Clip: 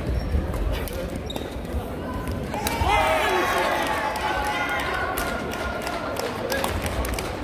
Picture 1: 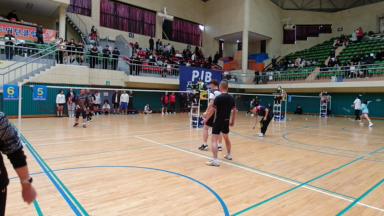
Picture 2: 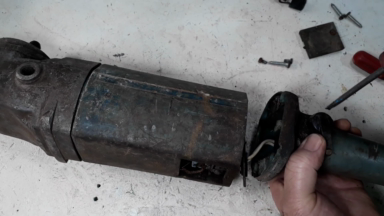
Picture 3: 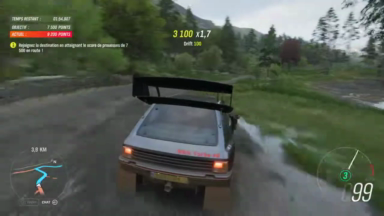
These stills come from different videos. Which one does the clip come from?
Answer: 1